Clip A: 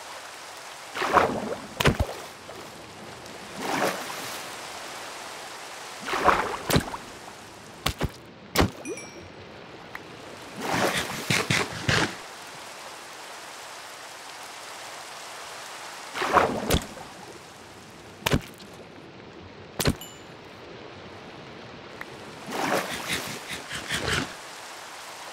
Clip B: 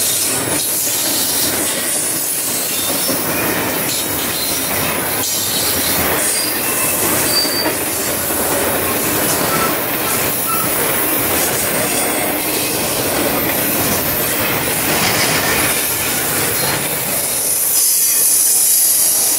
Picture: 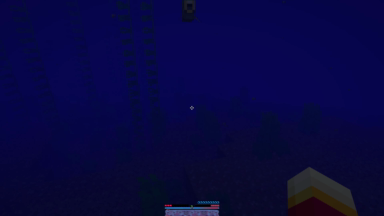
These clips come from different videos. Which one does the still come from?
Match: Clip A